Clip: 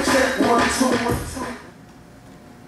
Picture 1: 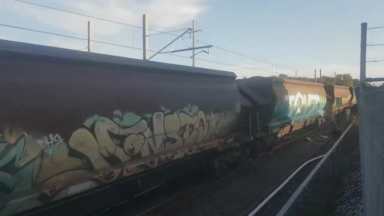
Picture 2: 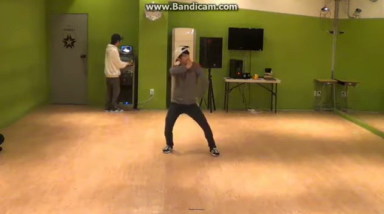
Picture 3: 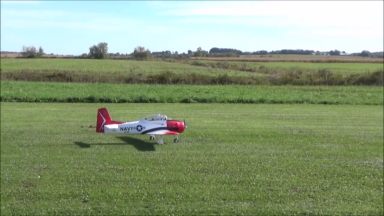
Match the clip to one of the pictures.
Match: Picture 2